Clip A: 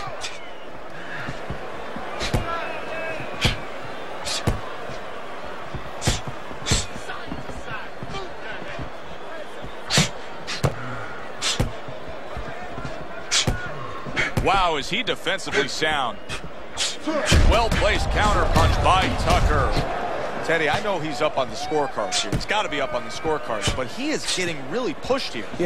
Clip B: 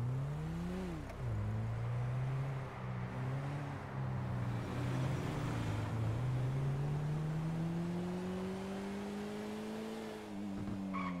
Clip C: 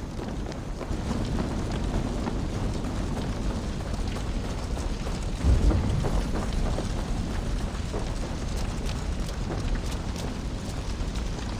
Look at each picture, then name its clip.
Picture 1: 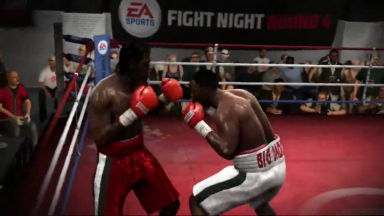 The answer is A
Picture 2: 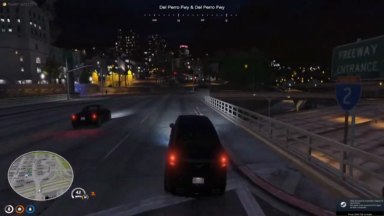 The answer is B